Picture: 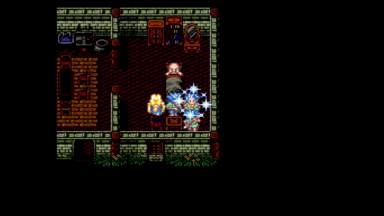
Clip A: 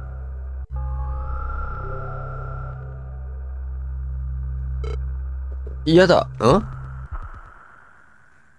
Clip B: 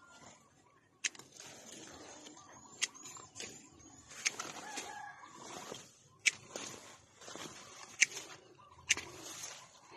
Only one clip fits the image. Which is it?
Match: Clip A